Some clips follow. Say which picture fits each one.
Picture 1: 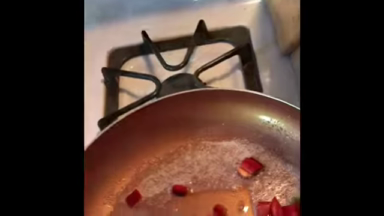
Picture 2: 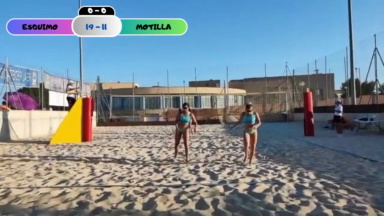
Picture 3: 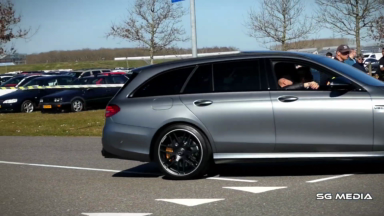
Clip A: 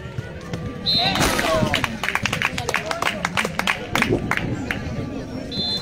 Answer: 2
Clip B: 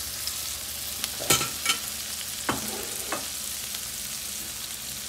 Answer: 1